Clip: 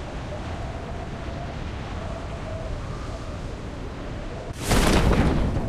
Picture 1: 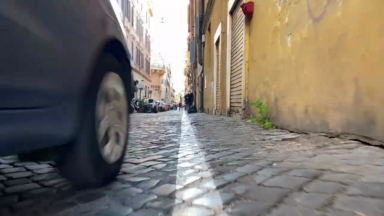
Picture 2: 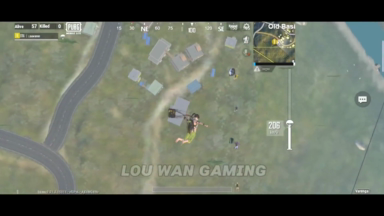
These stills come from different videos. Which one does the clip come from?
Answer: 2